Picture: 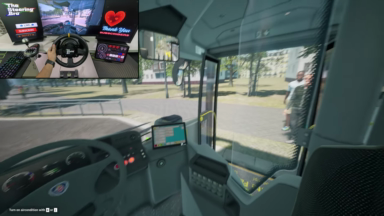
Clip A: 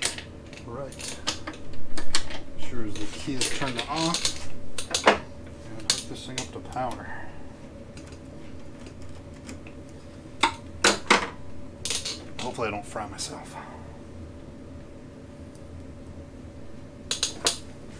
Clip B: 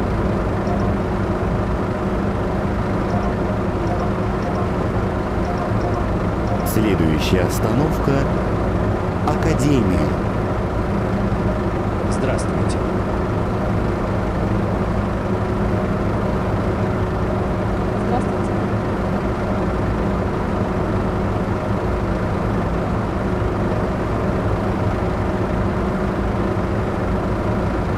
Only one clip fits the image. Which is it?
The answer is B